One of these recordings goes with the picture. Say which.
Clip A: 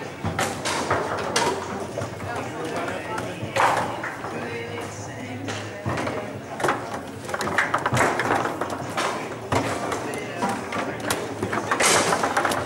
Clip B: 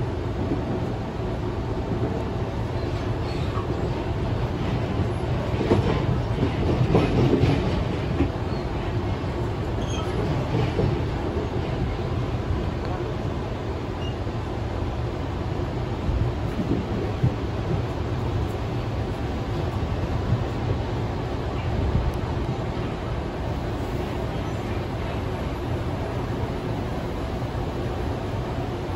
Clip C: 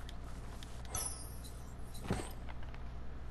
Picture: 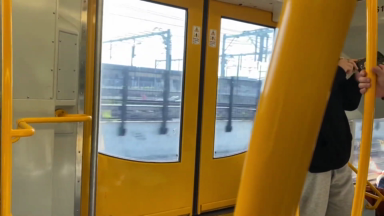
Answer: B